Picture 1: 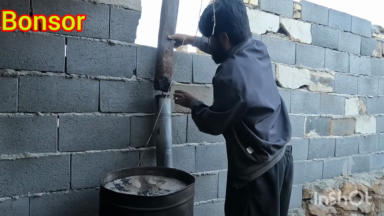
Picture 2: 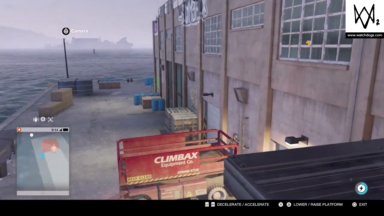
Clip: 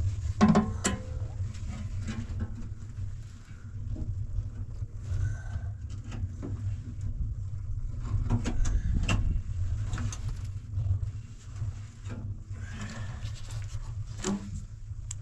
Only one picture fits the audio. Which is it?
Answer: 1